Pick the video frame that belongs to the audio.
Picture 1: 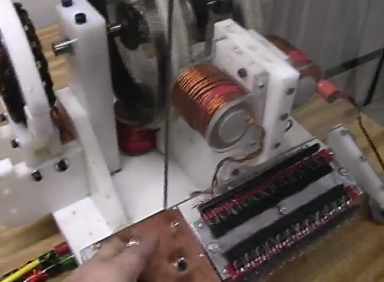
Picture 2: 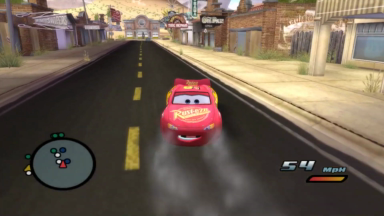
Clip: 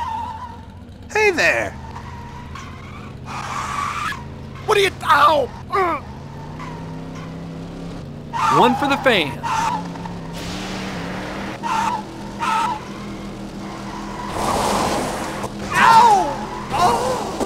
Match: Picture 2